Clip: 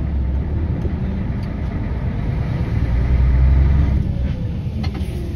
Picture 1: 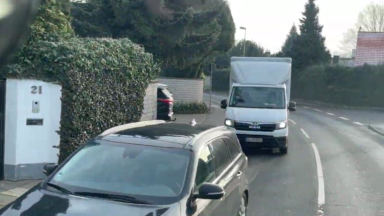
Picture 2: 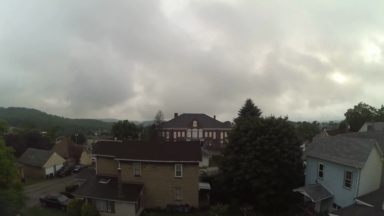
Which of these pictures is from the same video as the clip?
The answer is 1